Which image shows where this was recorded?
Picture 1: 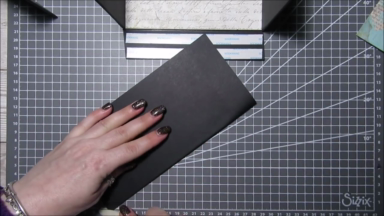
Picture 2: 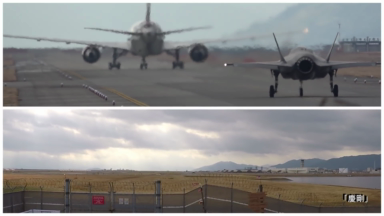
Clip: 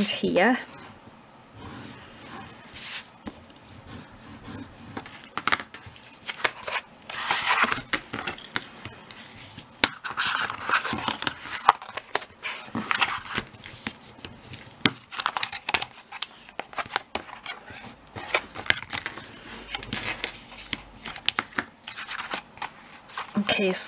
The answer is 1